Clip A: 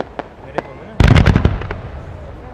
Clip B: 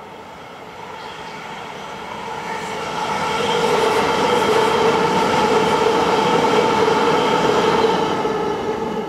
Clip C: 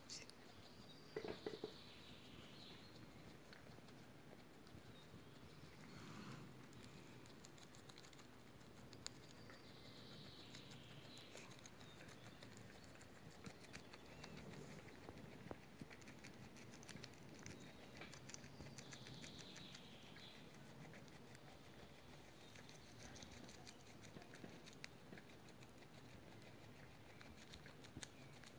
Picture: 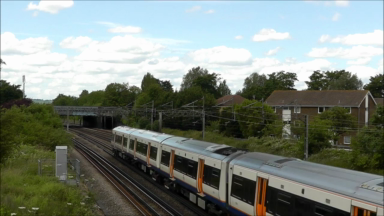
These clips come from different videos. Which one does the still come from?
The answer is B